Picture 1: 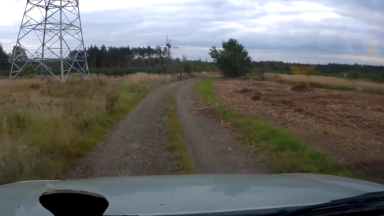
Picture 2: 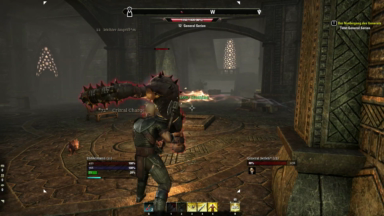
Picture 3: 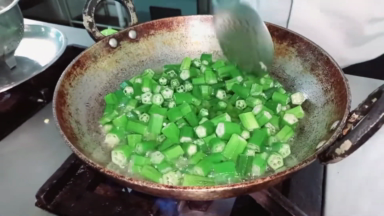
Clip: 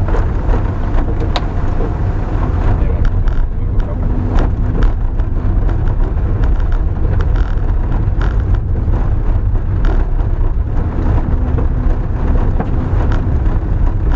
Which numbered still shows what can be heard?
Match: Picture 1